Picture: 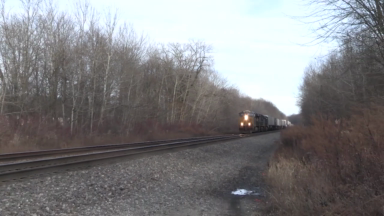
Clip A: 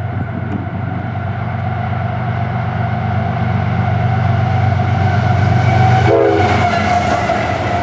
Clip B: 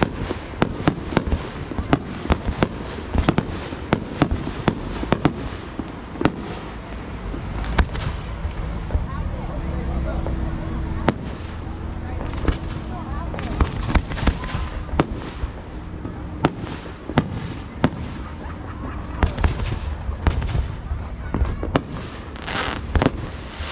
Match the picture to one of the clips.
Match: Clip A